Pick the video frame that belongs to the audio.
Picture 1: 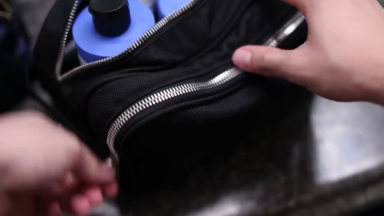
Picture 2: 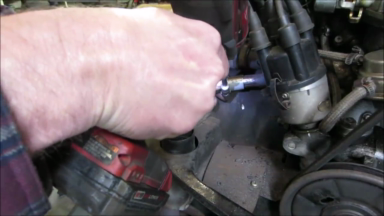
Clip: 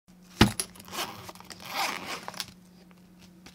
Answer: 1